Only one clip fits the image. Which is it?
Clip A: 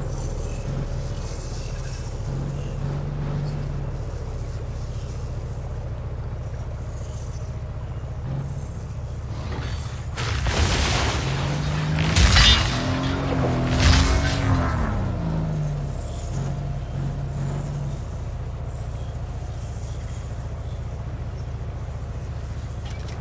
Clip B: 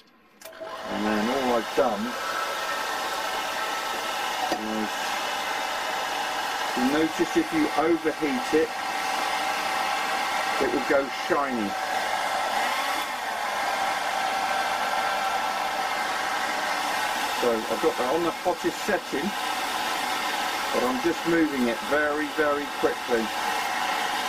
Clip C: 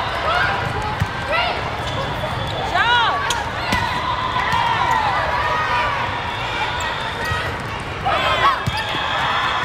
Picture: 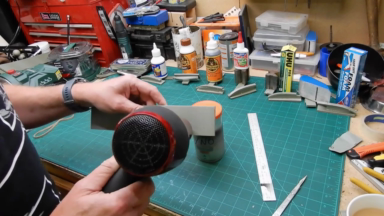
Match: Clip B